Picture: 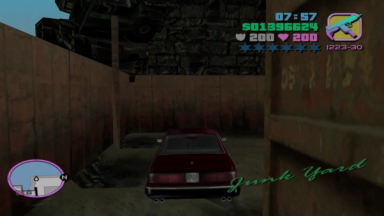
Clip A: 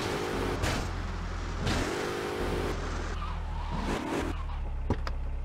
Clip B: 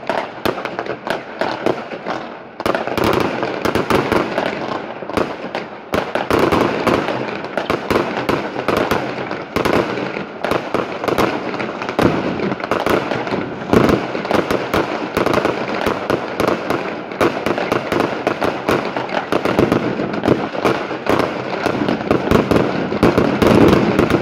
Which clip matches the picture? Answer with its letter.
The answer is A